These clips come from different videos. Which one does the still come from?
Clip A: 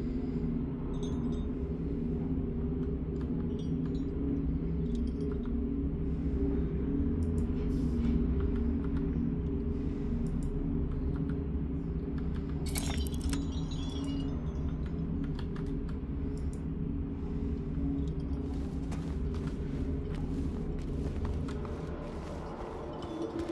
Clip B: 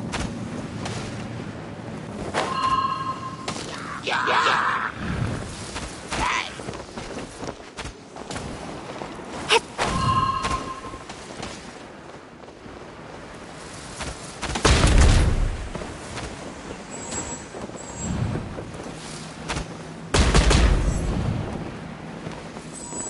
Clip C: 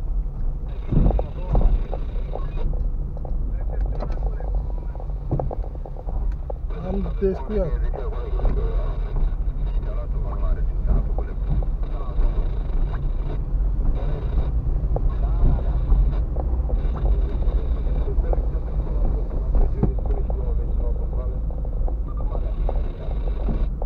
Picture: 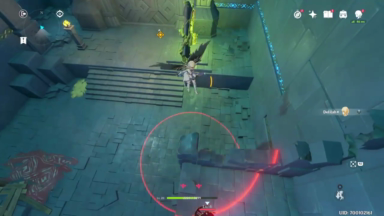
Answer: B